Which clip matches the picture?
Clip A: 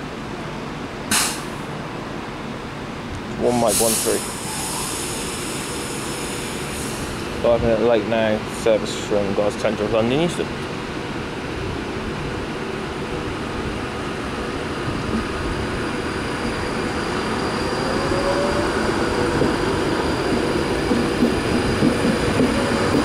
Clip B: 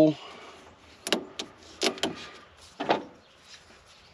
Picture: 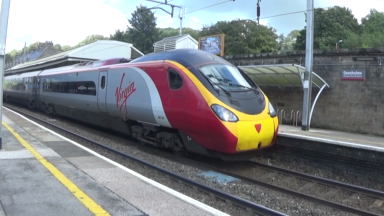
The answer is A